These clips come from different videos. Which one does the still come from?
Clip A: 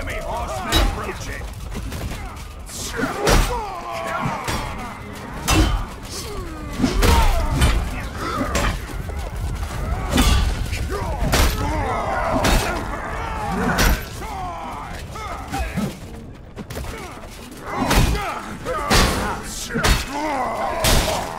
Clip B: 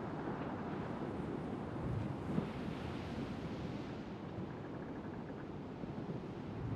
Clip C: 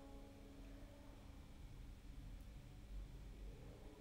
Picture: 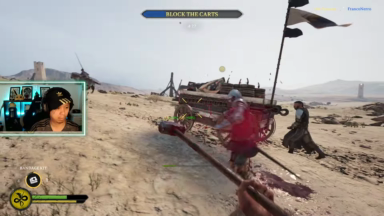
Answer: A